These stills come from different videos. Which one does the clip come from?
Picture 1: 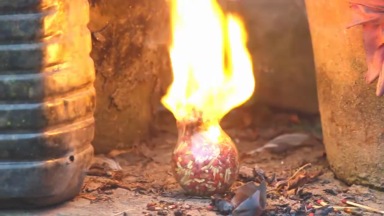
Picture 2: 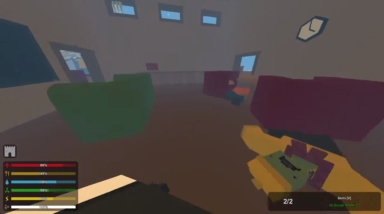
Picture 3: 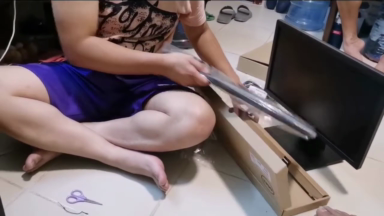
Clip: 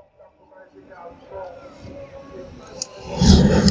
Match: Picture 1